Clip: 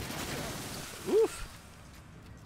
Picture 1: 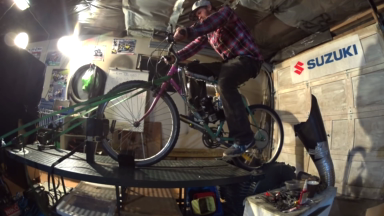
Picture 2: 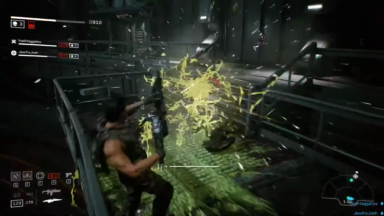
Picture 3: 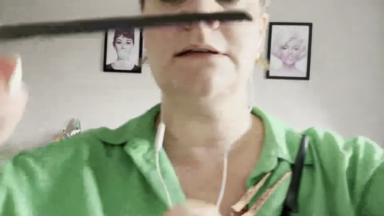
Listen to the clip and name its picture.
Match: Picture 2